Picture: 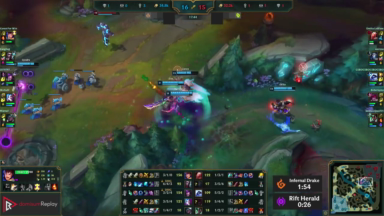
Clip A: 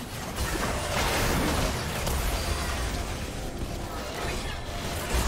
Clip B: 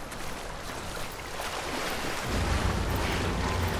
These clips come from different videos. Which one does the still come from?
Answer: A